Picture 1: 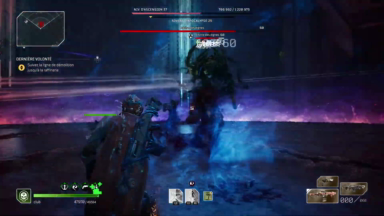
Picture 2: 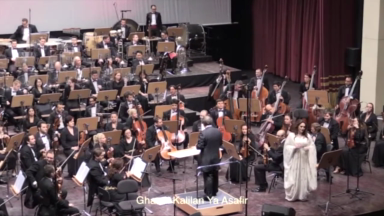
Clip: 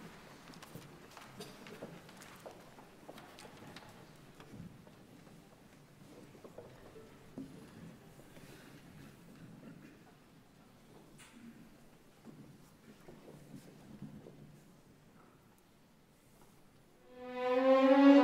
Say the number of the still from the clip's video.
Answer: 2